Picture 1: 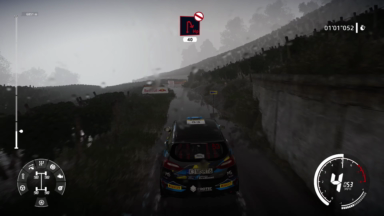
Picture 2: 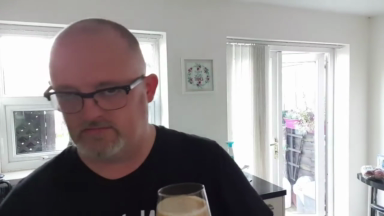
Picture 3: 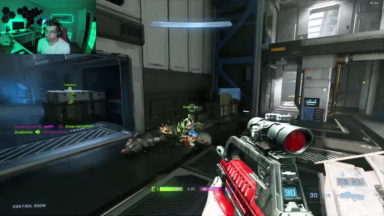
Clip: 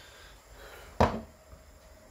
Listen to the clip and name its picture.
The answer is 2